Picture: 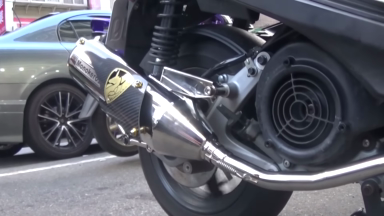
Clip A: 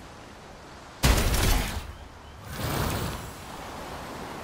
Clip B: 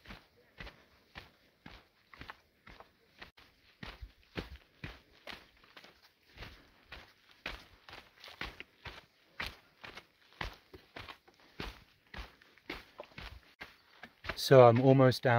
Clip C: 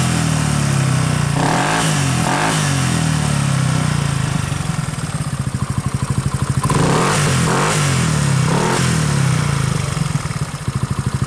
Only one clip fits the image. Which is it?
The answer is C